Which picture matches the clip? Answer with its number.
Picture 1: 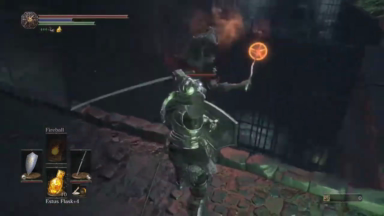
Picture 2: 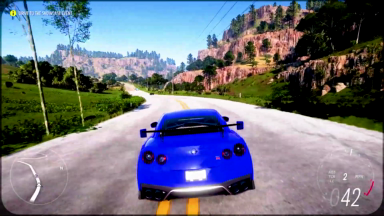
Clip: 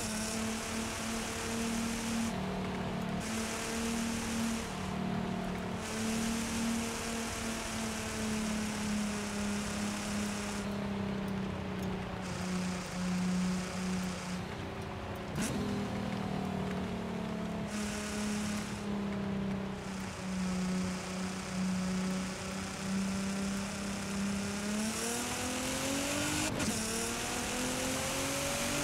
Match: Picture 2